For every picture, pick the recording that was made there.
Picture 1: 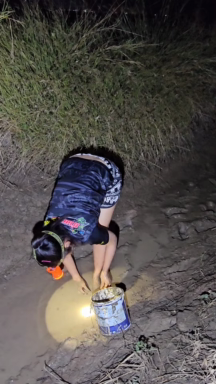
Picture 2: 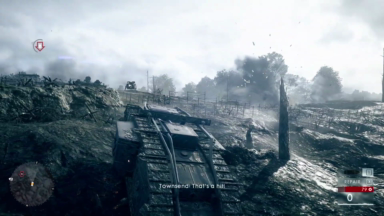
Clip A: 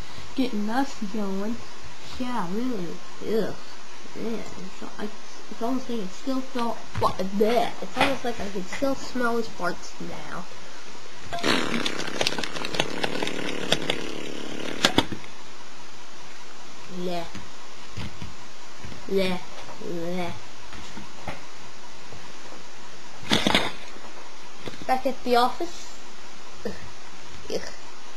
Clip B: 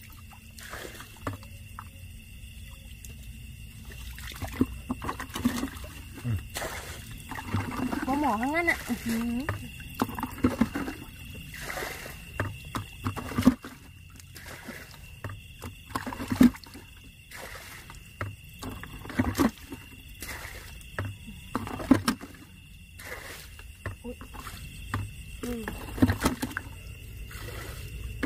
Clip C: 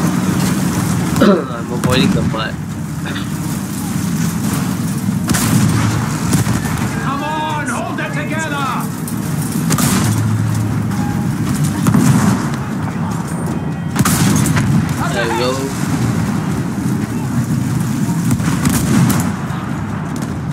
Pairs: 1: B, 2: C